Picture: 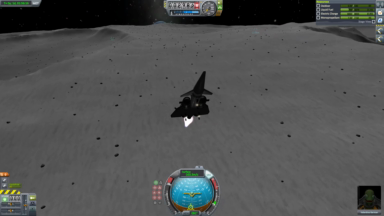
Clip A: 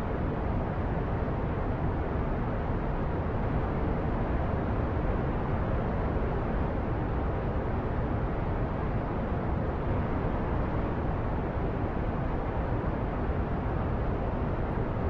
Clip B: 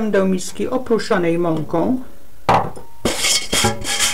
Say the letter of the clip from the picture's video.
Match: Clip A